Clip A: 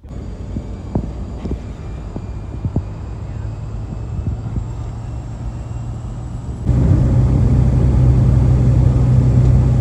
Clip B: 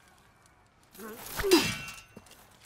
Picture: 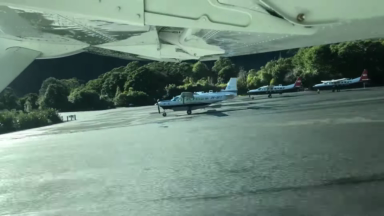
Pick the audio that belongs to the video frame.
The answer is A